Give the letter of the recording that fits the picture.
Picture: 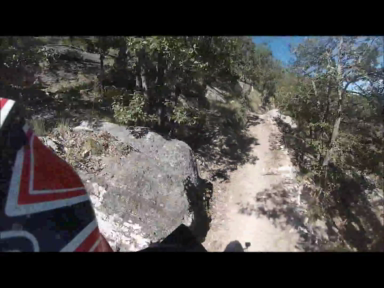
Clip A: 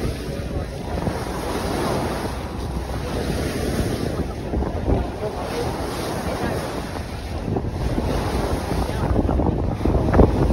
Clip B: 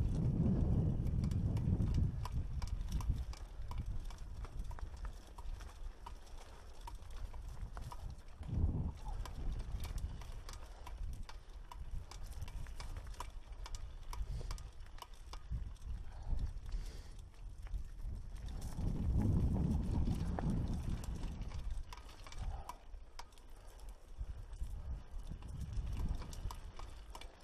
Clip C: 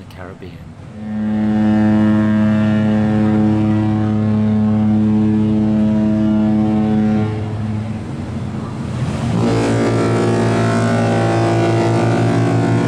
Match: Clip B